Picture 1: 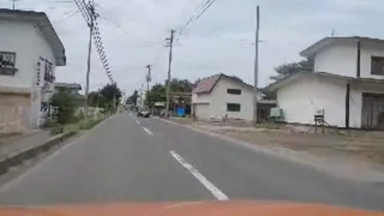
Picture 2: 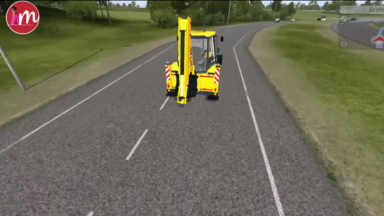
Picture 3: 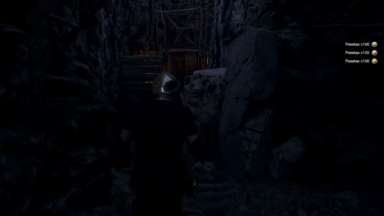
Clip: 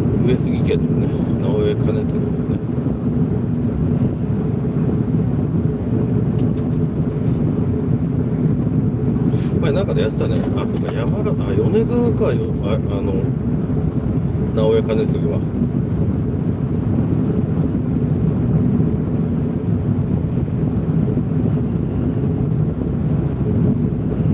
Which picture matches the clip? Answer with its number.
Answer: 1